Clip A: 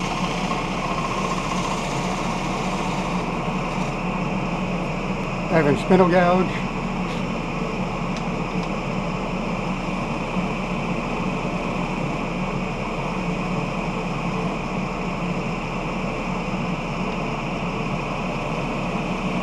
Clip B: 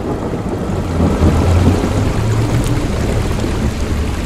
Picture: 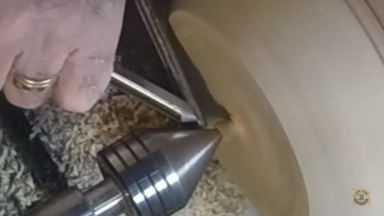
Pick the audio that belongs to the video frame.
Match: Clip A